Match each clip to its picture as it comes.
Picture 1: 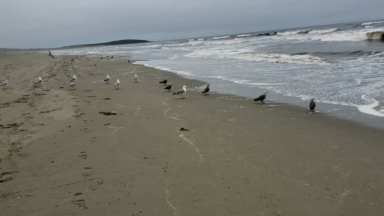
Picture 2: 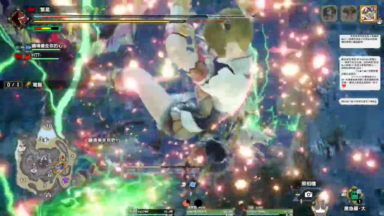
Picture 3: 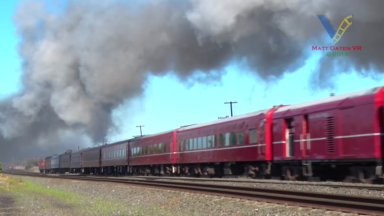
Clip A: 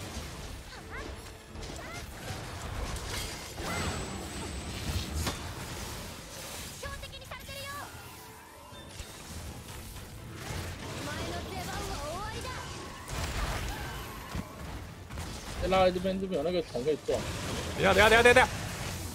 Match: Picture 2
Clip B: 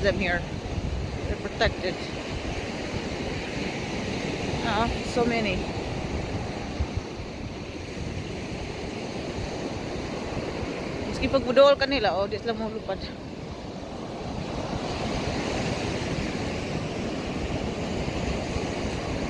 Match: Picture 1